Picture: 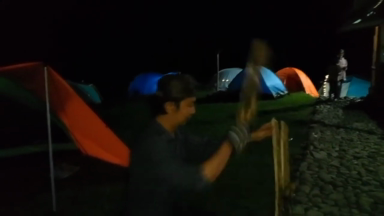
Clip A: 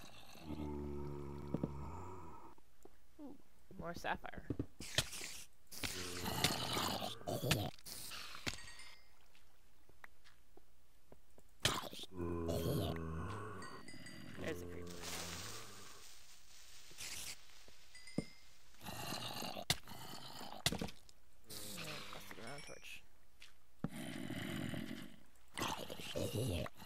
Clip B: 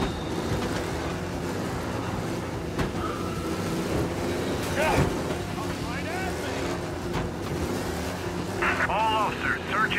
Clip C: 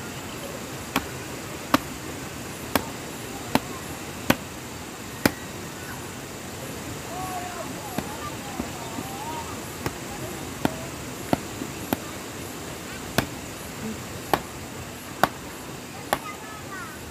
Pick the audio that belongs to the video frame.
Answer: C